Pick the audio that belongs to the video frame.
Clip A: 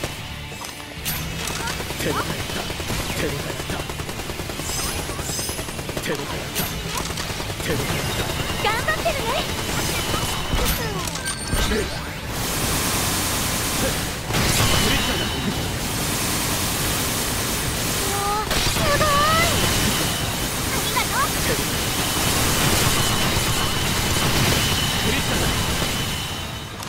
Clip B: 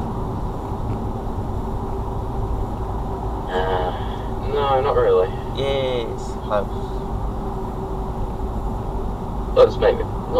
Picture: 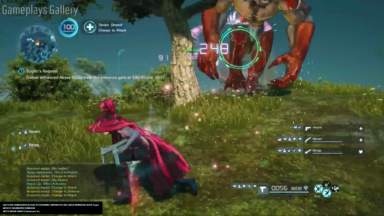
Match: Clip A